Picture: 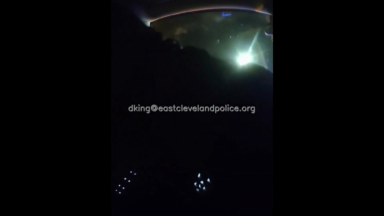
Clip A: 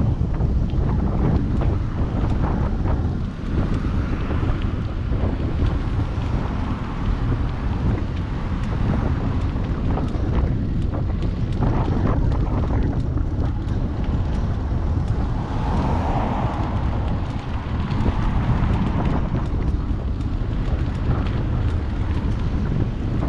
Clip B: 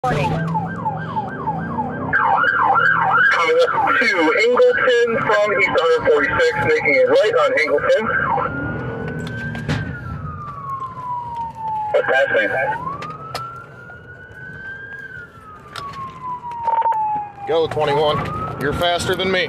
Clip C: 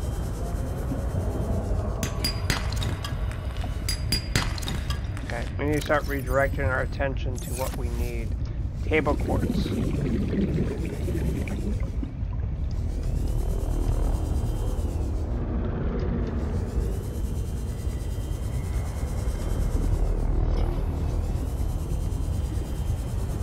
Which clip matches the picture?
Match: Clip B